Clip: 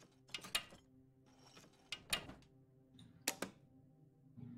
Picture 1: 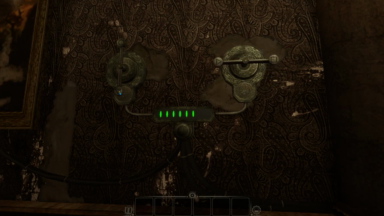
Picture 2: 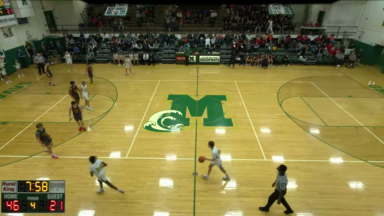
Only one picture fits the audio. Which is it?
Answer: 1